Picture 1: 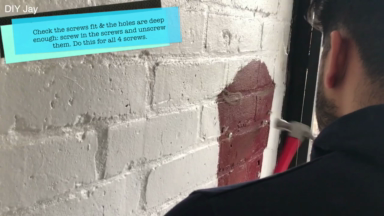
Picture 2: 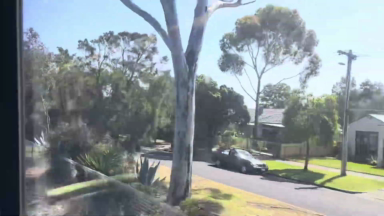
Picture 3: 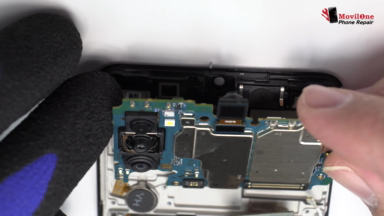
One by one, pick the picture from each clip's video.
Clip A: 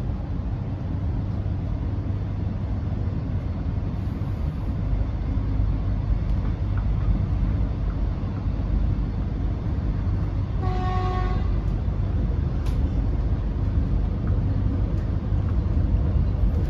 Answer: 2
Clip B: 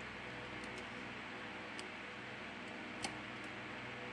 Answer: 3